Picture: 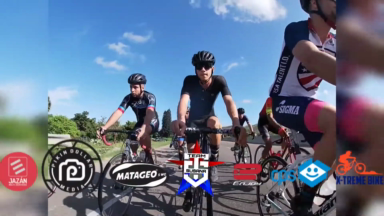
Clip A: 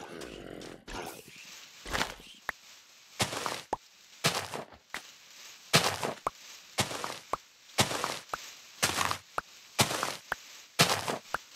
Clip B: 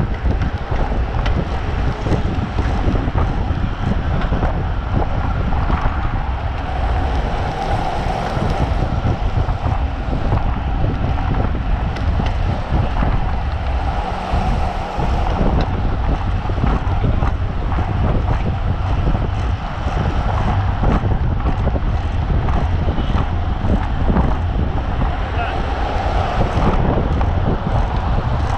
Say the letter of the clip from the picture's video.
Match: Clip B